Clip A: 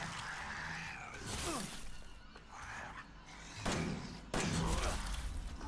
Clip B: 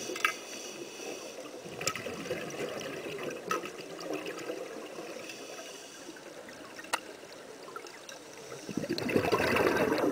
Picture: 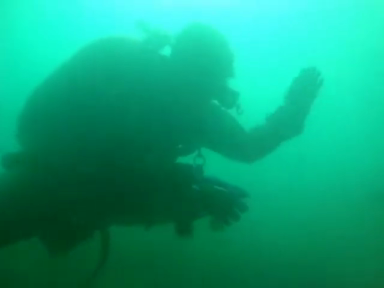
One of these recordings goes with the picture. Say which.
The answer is B